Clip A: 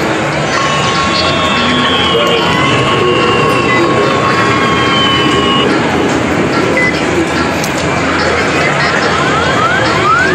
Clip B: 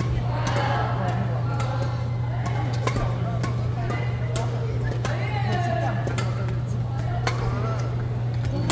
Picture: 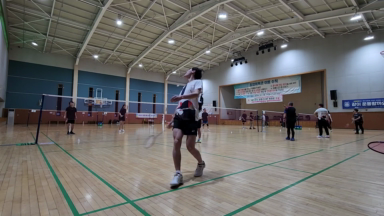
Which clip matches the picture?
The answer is B